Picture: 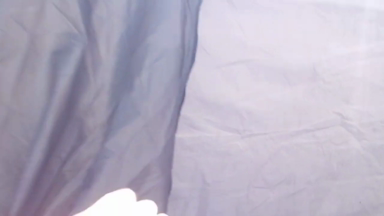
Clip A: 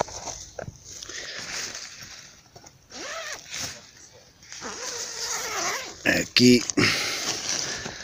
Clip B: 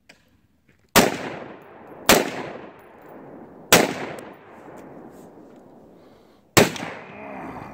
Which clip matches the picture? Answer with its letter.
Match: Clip A